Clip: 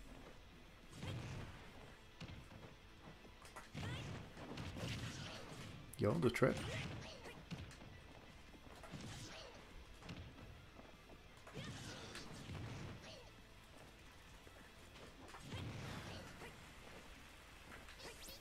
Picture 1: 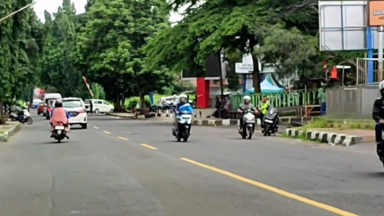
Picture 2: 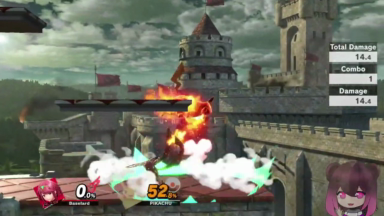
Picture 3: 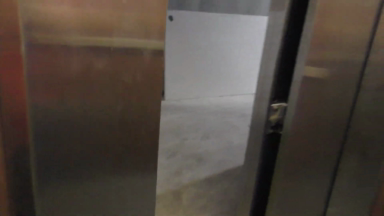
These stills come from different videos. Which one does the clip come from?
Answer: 2